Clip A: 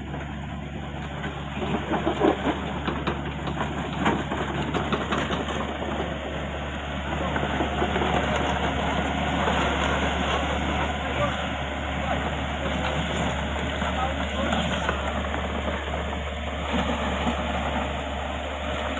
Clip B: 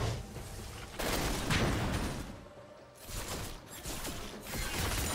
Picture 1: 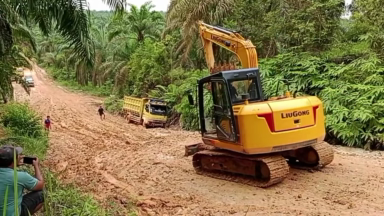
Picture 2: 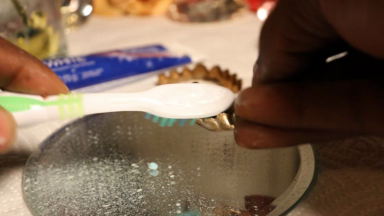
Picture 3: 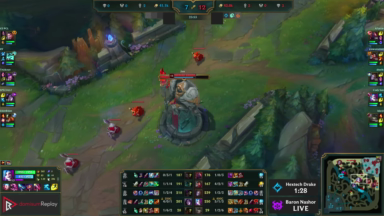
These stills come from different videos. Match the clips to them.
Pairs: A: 1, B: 3